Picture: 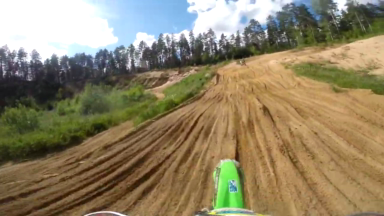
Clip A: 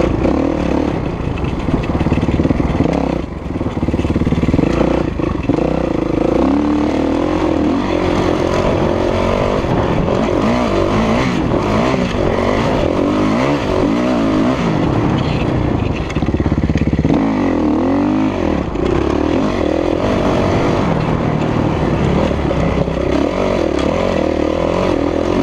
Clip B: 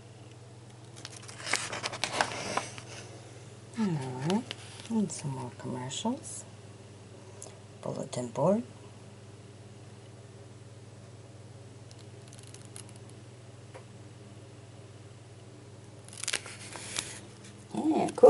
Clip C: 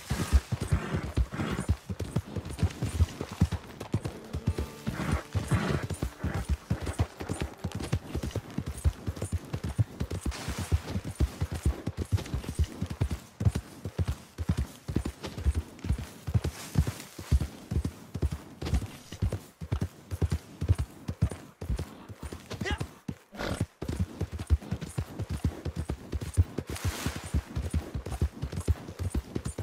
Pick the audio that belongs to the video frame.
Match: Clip A